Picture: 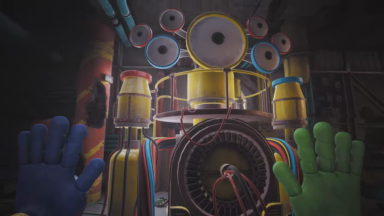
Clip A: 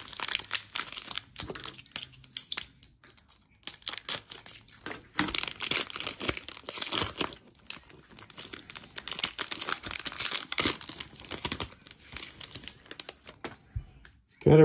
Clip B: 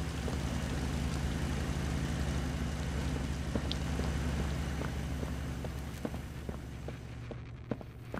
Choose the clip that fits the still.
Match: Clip B